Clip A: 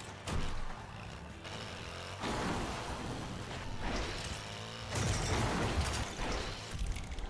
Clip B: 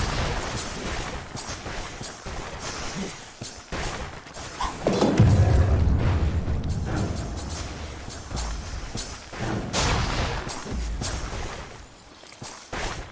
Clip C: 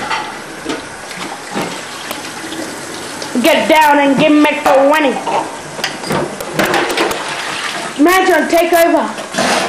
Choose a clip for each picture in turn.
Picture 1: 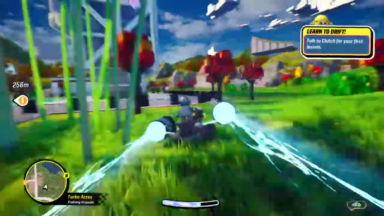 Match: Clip A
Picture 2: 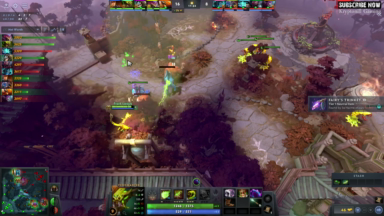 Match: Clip B